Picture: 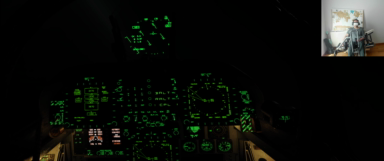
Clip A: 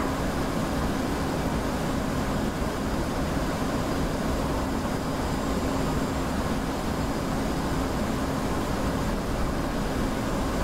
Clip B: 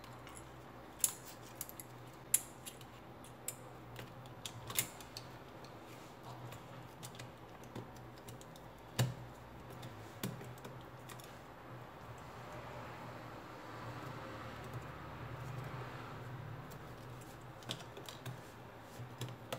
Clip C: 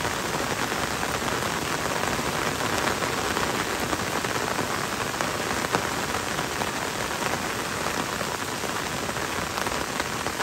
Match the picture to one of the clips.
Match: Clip A